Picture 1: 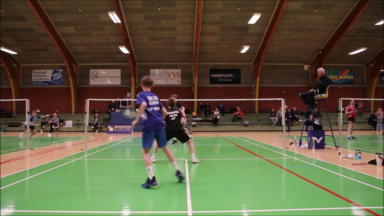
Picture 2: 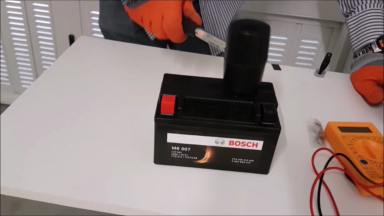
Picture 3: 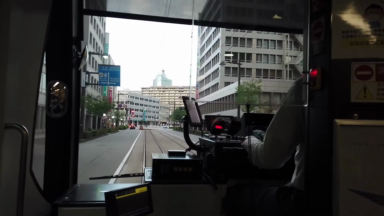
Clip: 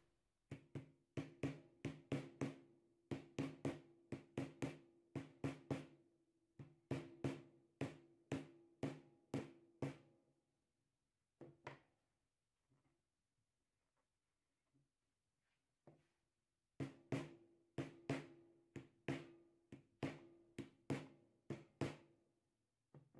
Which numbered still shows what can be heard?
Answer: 2